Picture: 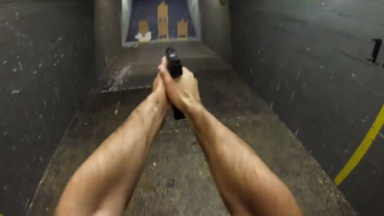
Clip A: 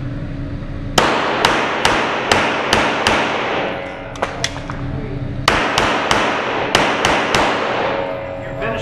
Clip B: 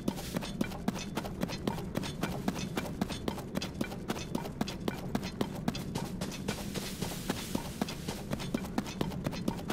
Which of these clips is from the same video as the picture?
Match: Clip A